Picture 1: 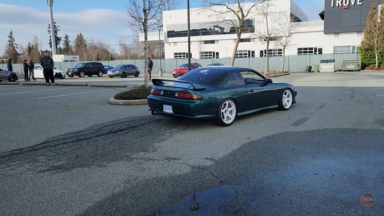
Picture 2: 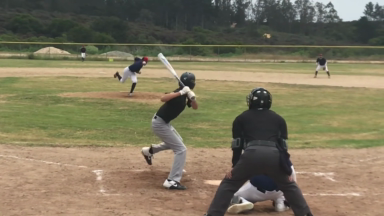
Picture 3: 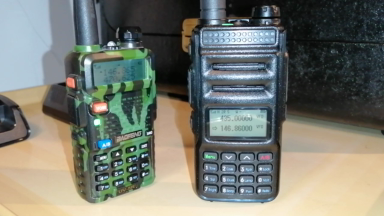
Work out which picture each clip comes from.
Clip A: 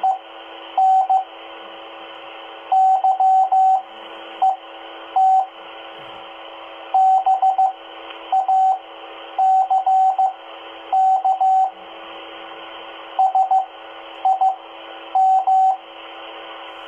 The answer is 3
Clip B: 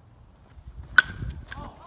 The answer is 2